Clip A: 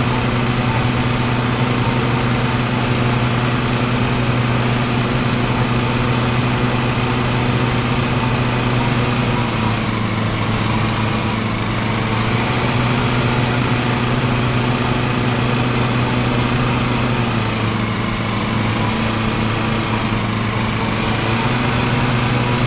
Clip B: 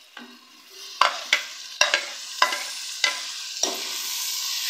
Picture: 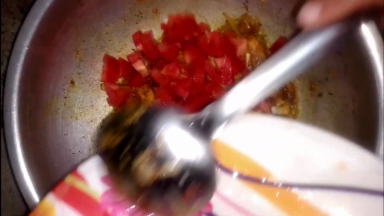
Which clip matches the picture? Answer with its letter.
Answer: B